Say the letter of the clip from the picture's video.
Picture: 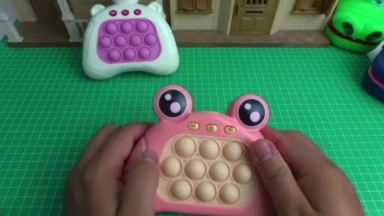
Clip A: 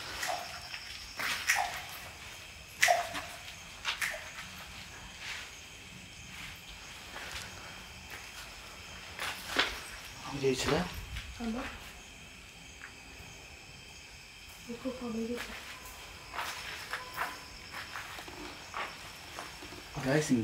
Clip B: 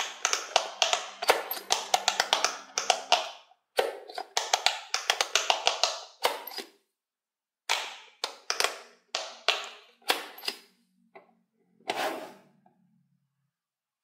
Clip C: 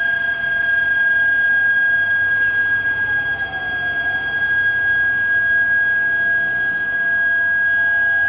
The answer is B